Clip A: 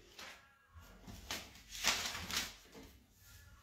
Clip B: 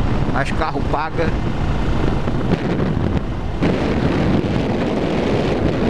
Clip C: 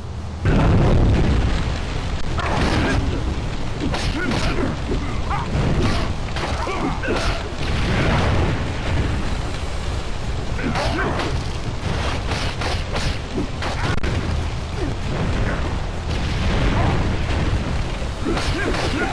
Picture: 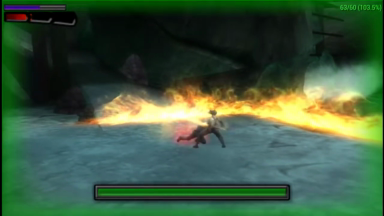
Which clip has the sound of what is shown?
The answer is C